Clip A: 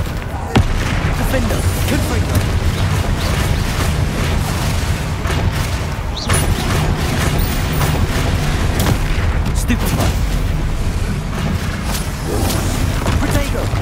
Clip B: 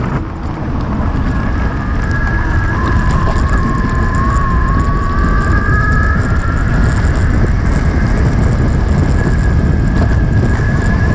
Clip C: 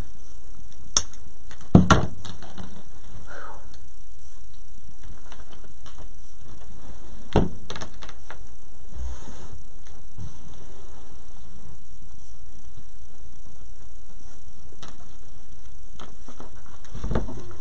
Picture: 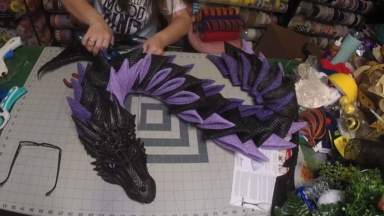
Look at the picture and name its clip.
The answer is C